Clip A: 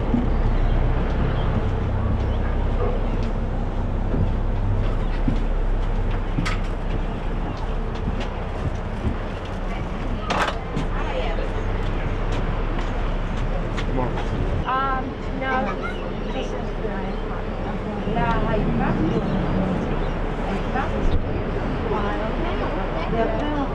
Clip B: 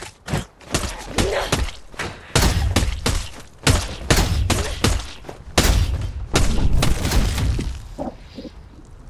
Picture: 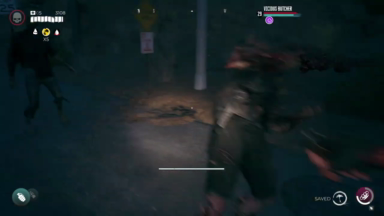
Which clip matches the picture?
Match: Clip B